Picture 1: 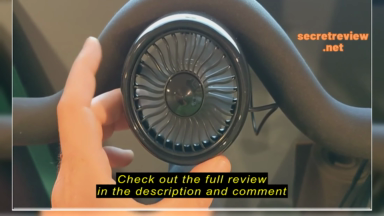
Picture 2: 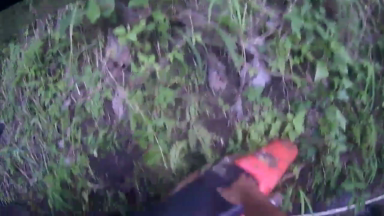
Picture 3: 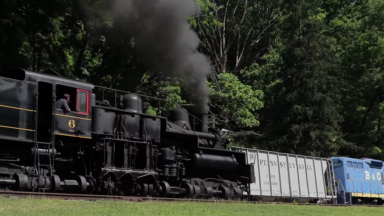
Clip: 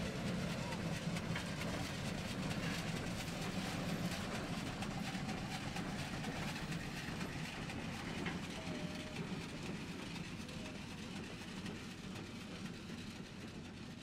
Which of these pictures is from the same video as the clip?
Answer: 3